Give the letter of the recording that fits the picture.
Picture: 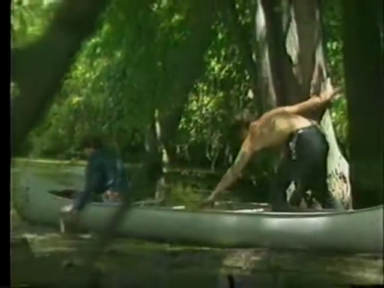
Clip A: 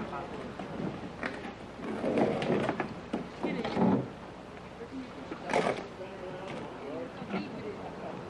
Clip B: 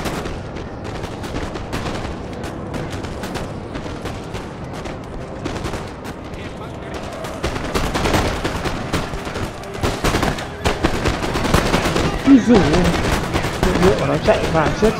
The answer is A